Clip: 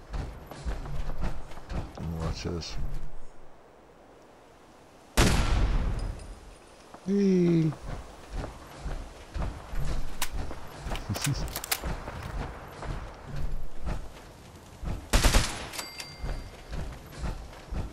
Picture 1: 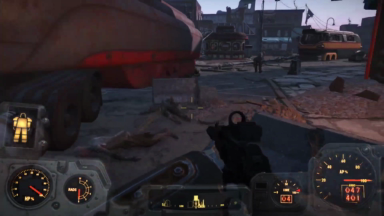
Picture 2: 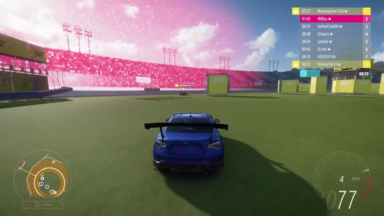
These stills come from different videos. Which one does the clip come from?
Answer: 1